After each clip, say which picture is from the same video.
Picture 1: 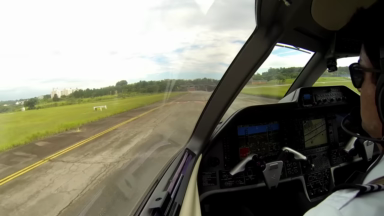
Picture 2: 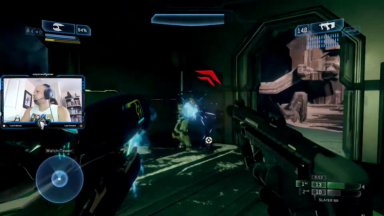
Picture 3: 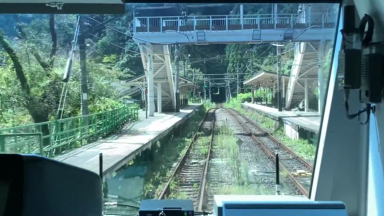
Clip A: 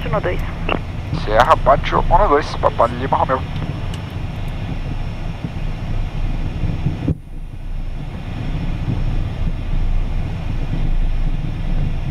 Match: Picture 1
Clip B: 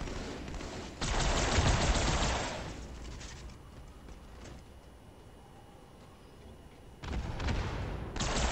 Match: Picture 2